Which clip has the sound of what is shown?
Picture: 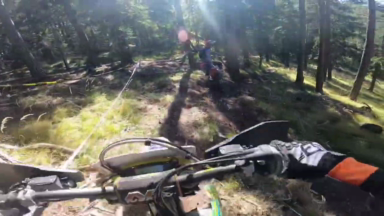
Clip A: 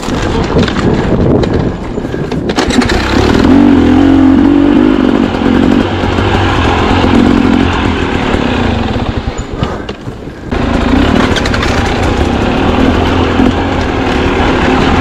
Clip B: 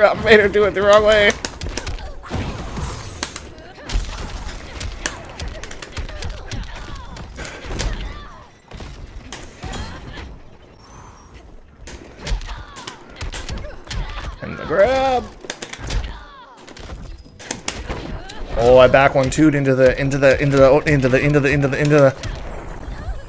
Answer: A